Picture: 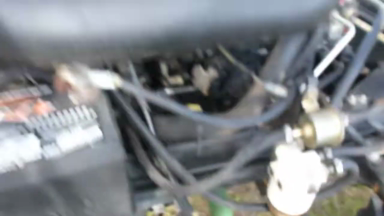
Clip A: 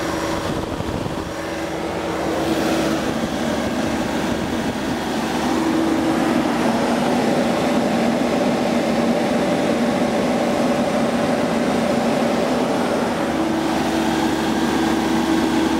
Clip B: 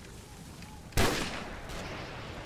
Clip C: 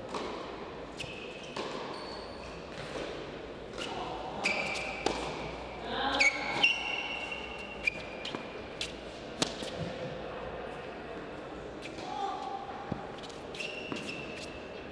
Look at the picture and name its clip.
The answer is A